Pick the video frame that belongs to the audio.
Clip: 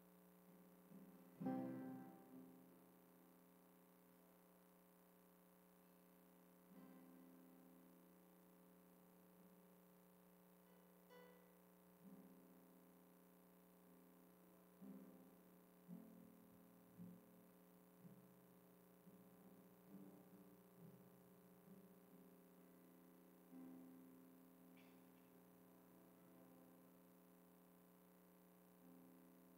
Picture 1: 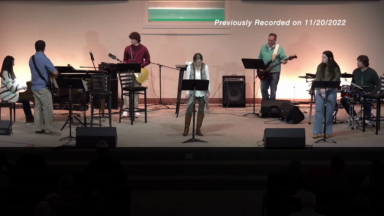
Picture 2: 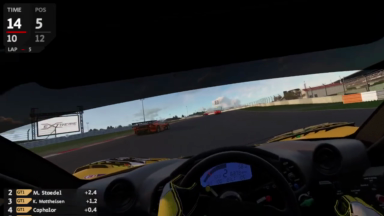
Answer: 1